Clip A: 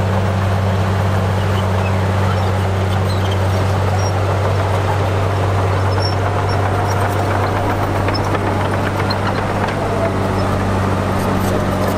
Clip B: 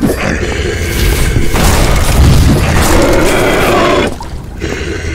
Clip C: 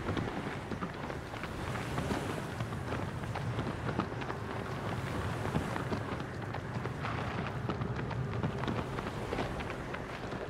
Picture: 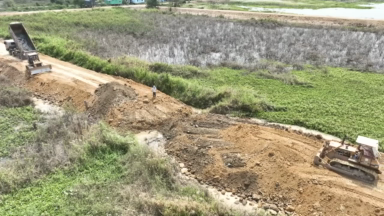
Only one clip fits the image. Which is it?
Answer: A